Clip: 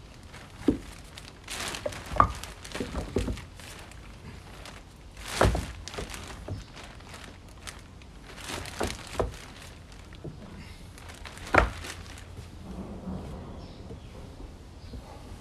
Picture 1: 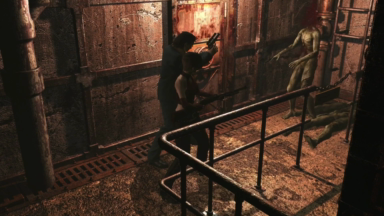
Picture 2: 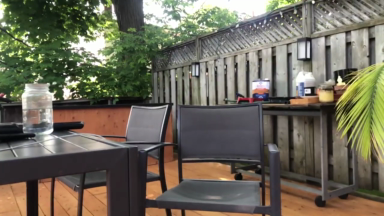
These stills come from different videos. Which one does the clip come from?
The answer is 2